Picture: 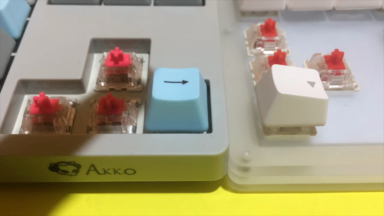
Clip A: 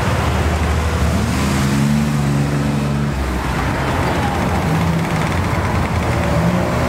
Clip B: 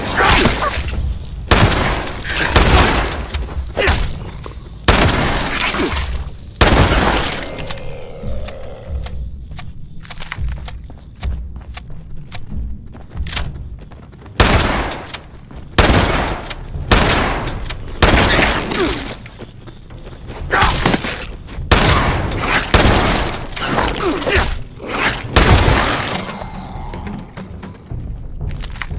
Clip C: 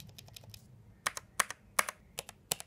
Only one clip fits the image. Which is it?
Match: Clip C